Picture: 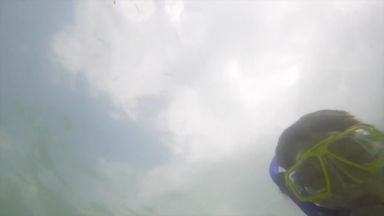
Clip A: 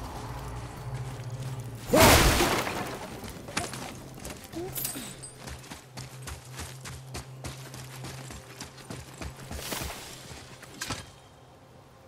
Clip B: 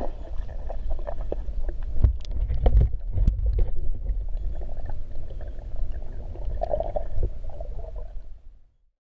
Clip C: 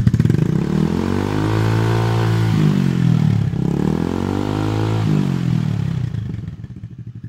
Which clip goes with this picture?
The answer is B